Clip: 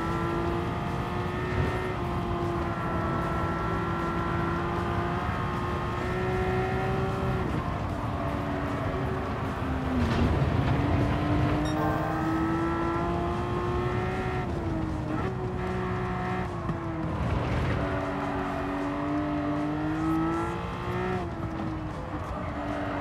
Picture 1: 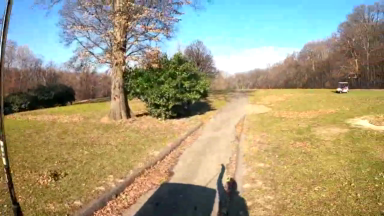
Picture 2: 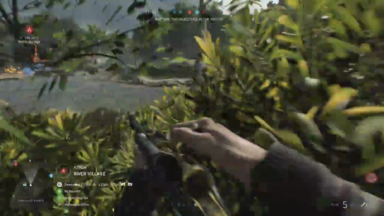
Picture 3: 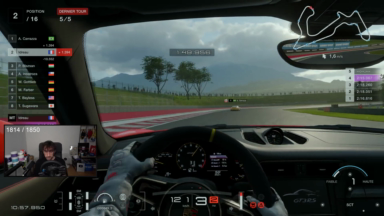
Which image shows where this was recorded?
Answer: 3